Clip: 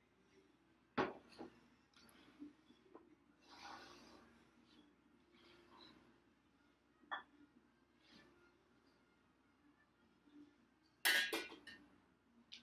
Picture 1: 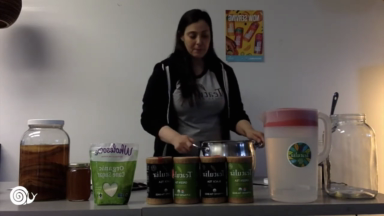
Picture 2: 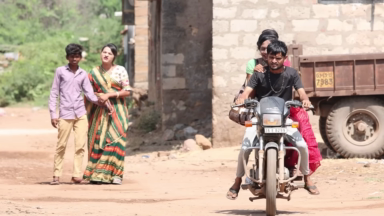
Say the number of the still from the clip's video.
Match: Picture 1